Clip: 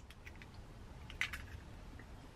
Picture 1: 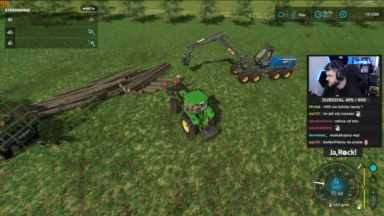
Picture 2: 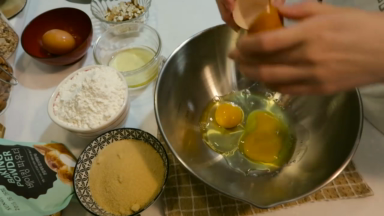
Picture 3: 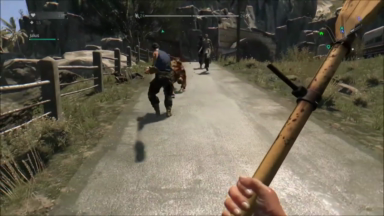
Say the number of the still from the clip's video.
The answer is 2